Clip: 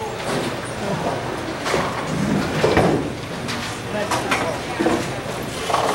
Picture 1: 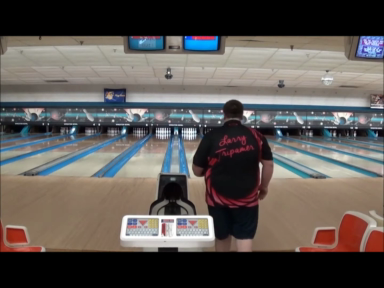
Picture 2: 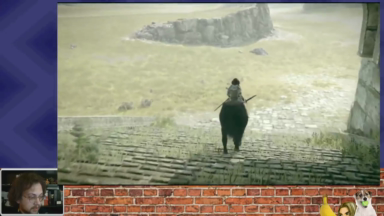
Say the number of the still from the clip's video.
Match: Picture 1